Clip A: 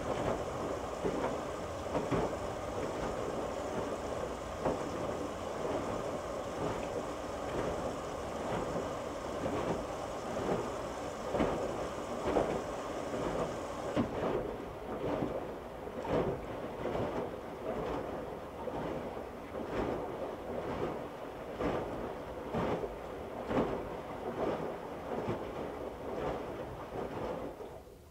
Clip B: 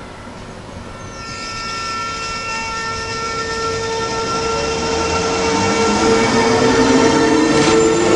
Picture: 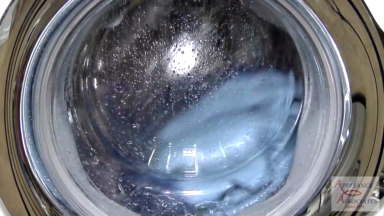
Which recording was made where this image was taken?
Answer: A